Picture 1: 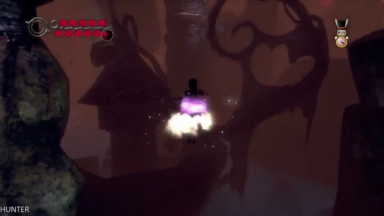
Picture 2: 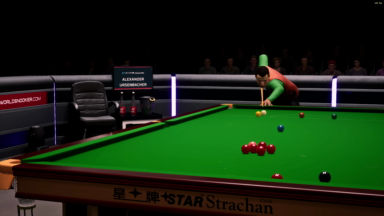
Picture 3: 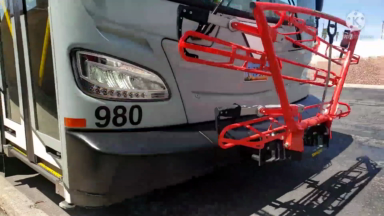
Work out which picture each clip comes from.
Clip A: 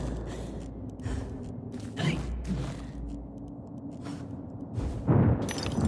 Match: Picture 1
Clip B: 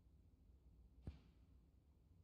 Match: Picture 2